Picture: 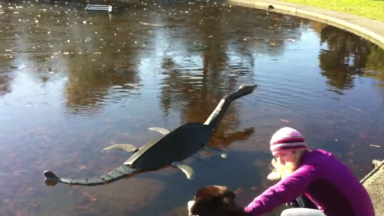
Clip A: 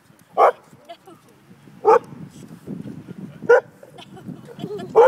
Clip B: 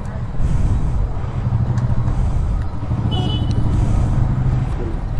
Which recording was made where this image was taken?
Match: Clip A